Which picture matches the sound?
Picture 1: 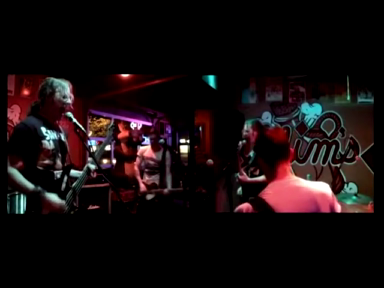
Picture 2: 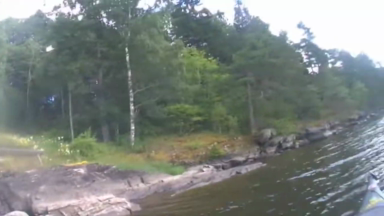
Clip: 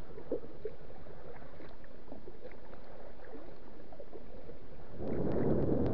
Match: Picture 2